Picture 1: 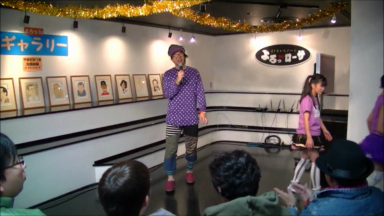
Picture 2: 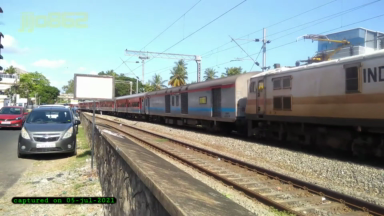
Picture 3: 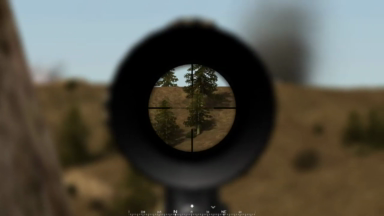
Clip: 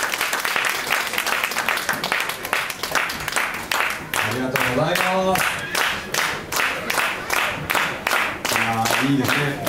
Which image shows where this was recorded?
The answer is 1